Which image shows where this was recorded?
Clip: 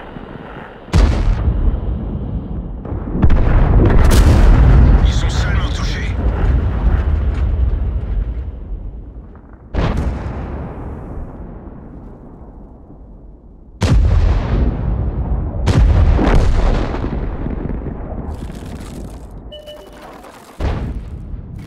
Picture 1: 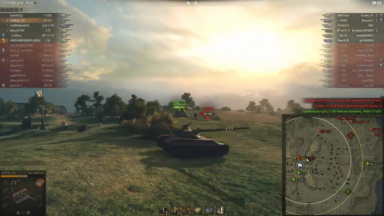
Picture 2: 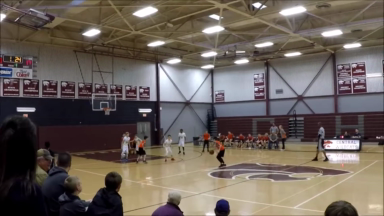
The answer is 1